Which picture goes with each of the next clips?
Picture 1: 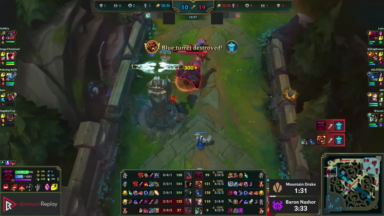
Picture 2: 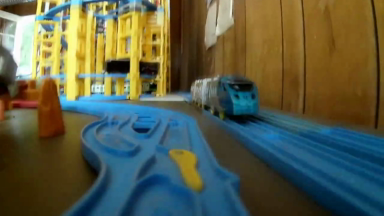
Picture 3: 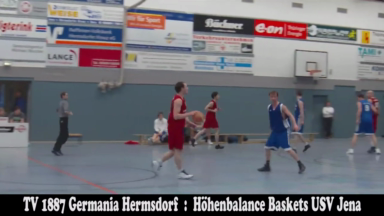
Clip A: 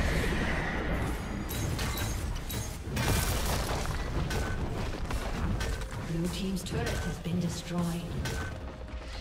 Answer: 1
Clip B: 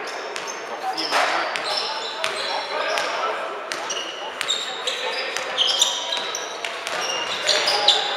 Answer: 3